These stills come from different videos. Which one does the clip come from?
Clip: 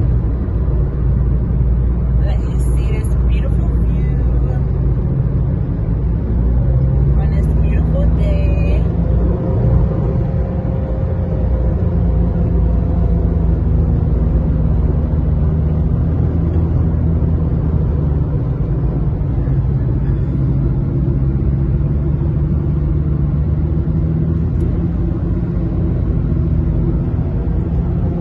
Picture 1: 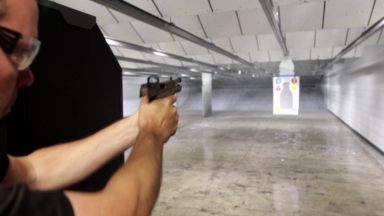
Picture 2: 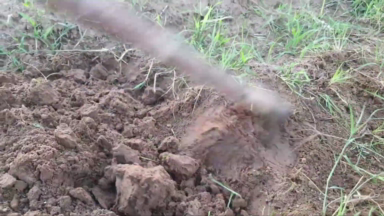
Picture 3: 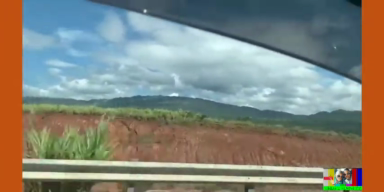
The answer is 3